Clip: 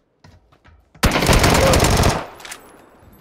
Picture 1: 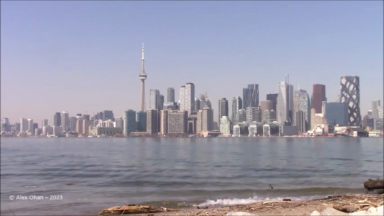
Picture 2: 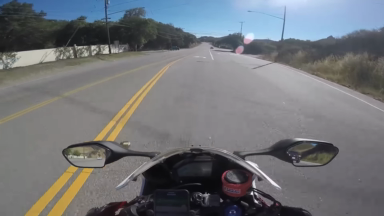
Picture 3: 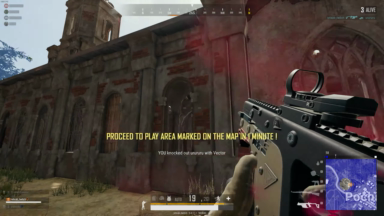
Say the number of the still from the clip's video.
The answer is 3